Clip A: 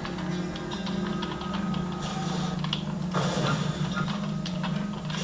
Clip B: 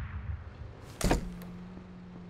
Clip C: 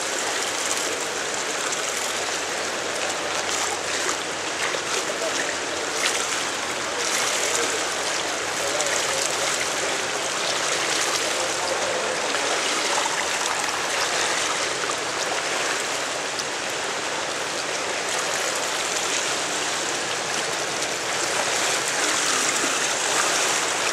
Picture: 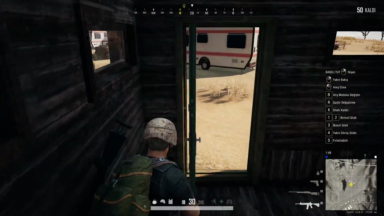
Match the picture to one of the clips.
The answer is B